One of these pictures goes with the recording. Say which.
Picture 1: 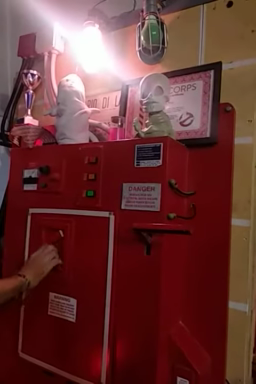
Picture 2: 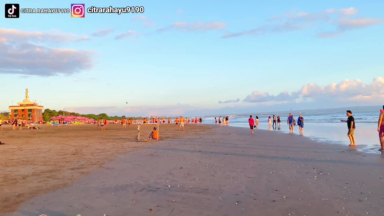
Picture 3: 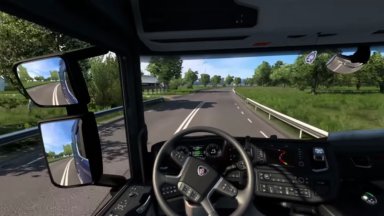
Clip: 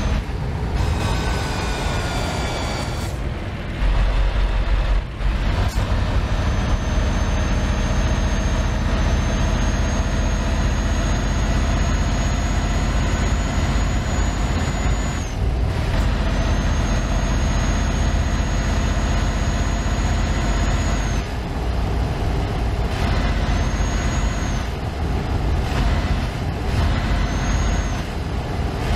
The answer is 3